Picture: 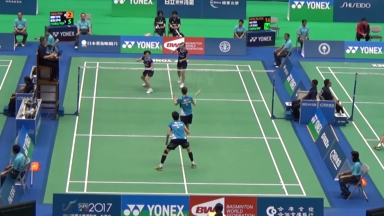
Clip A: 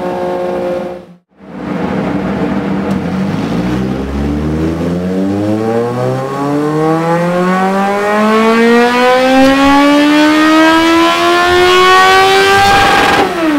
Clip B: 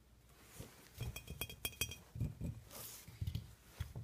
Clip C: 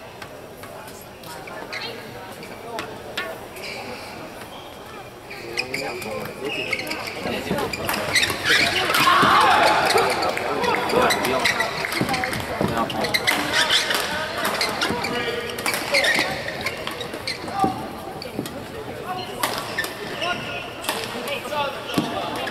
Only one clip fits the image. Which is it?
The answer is C